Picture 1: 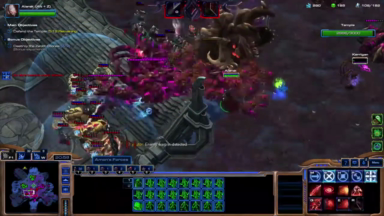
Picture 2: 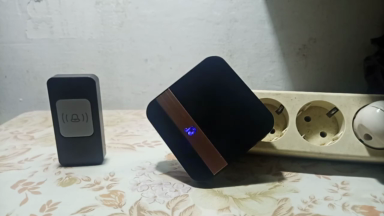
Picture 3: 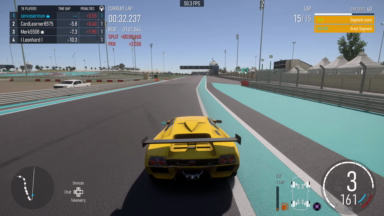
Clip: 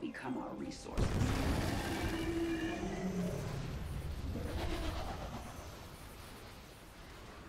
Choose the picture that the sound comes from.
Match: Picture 1